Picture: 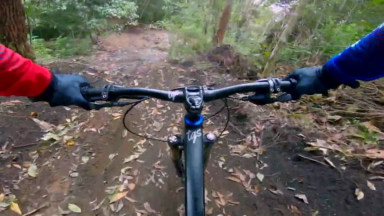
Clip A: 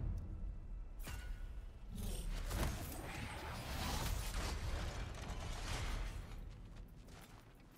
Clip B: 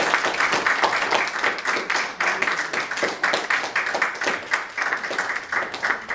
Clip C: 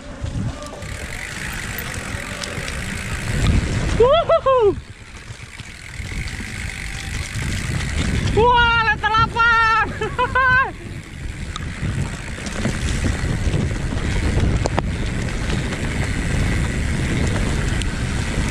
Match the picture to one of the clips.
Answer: C